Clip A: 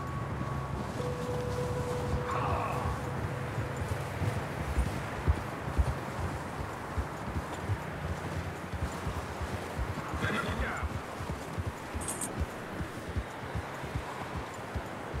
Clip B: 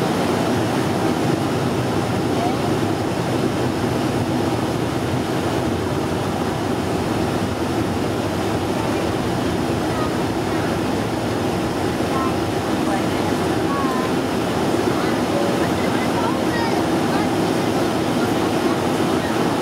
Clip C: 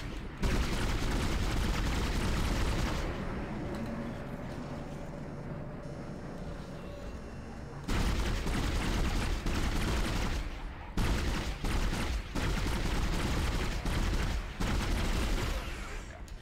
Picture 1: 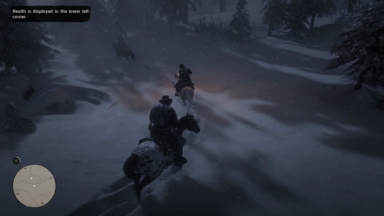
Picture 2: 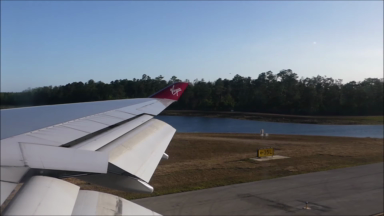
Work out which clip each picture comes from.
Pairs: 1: A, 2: B